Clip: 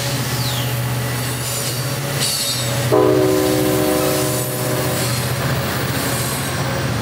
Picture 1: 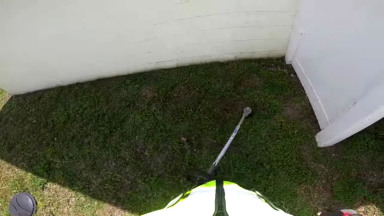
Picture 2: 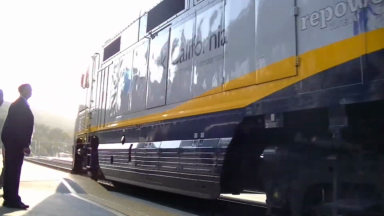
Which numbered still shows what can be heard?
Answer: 2